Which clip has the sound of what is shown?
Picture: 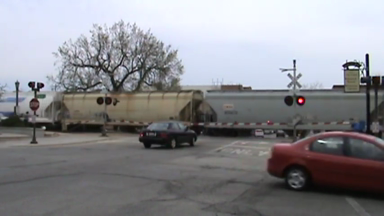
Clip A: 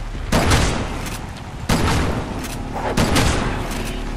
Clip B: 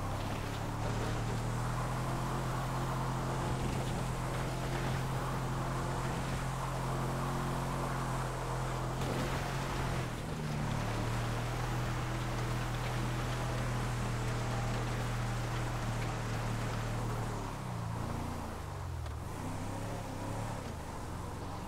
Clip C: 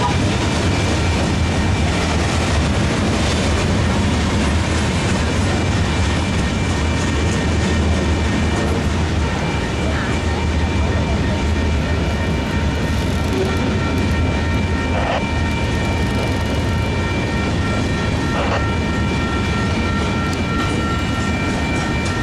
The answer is C